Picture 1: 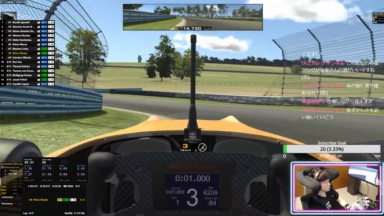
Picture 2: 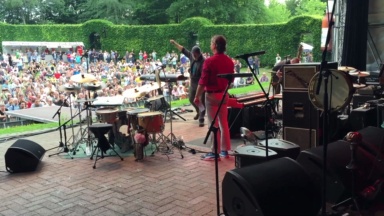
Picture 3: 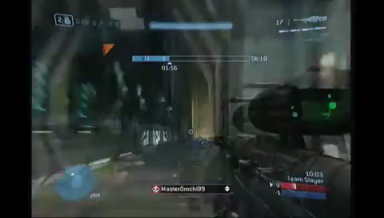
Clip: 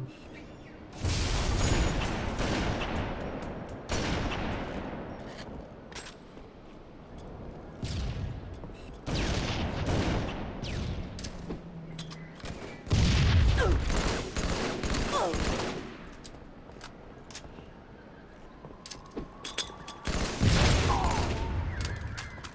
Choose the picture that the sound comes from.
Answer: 3